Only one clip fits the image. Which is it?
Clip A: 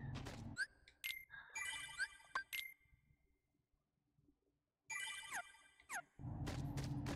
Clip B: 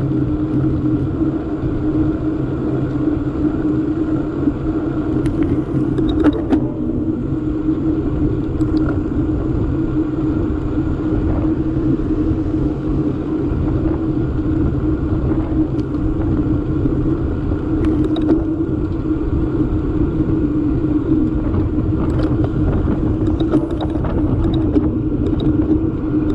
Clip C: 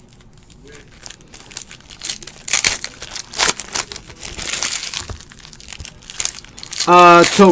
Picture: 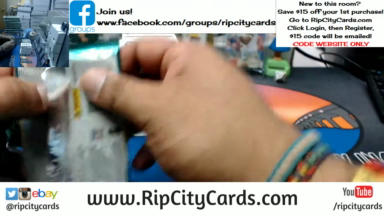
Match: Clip C